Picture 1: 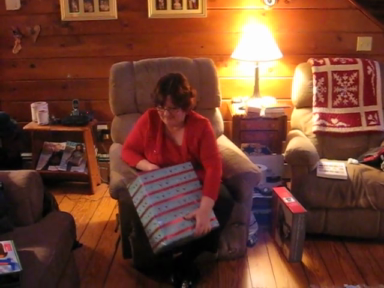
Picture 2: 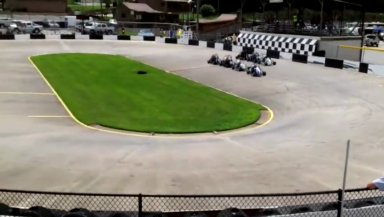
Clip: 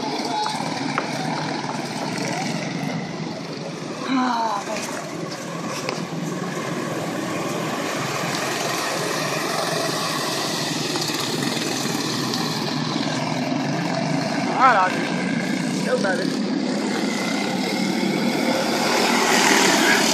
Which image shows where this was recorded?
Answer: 2